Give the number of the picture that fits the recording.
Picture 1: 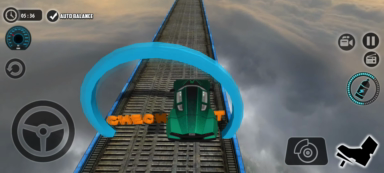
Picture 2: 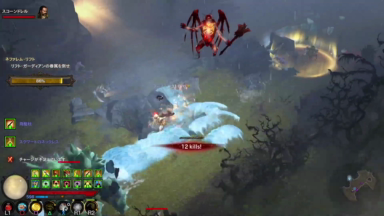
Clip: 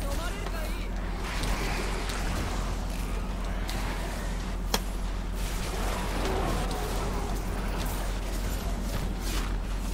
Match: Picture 2